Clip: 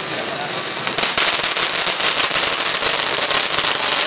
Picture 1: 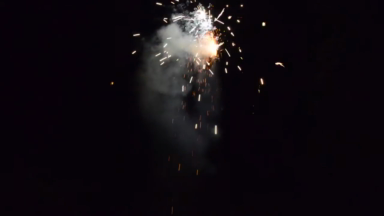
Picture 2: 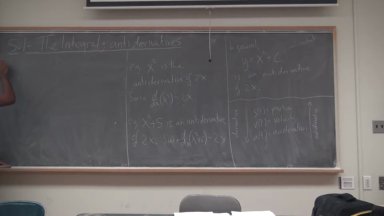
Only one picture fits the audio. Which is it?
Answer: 1